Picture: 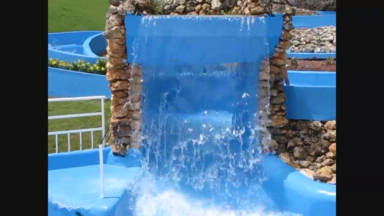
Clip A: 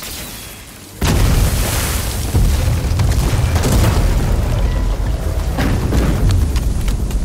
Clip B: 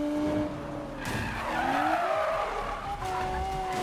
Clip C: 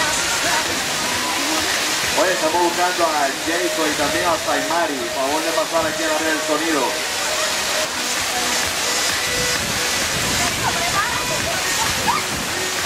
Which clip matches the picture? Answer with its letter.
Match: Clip C